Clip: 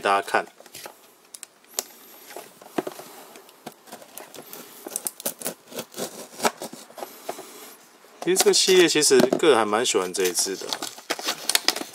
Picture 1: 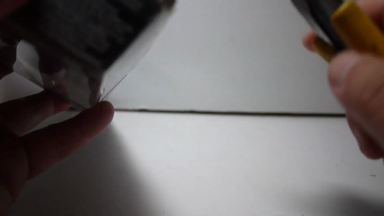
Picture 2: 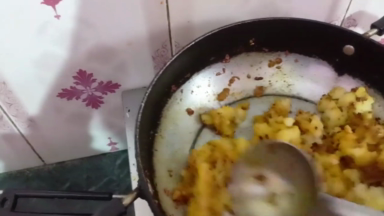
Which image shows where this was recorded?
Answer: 1